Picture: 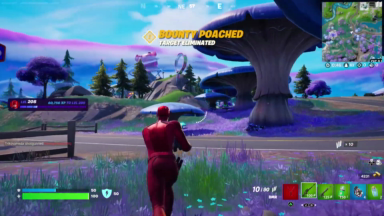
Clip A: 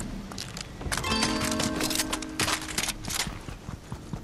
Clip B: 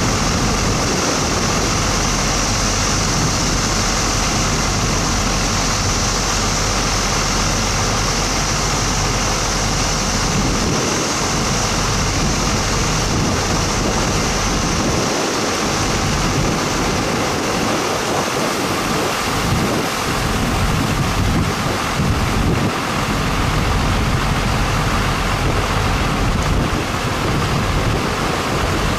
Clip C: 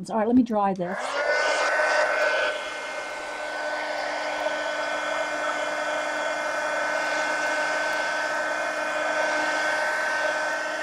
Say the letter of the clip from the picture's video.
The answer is A